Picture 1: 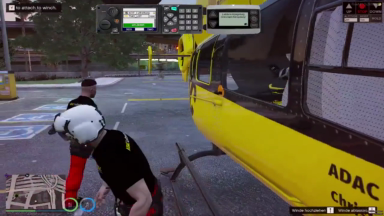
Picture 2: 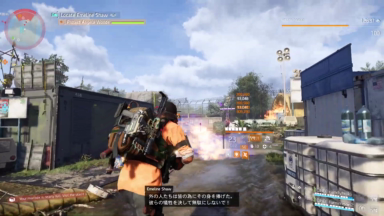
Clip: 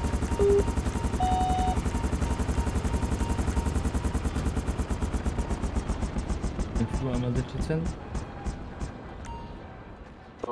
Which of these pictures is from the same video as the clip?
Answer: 1